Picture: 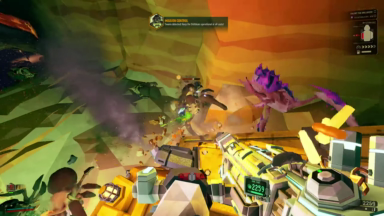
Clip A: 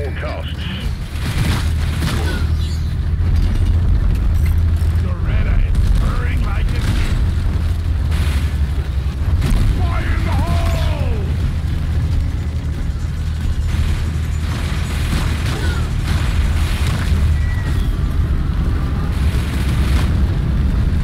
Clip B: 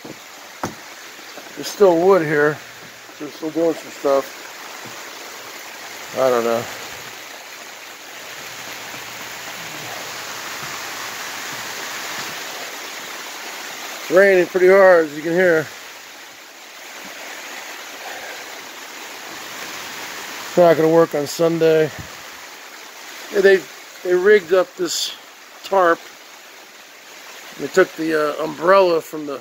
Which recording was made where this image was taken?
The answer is A